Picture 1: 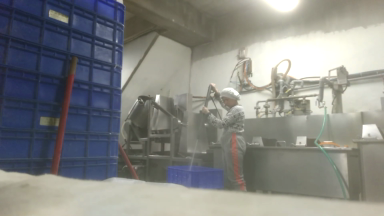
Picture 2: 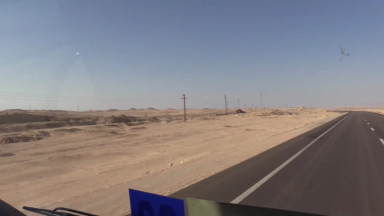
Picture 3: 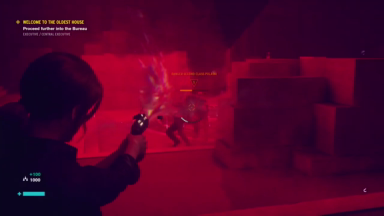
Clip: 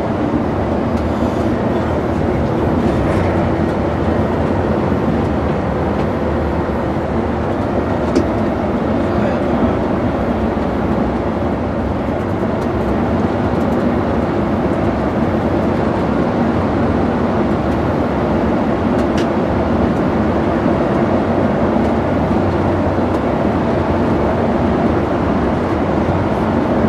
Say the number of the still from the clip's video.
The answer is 2